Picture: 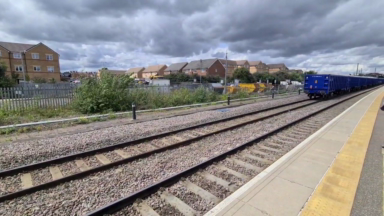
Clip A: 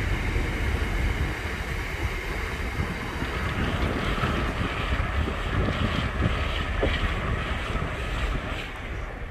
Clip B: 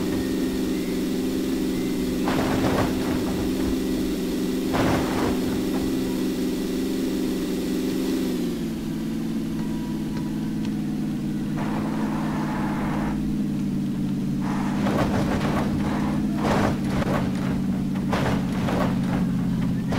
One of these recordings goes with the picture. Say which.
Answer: A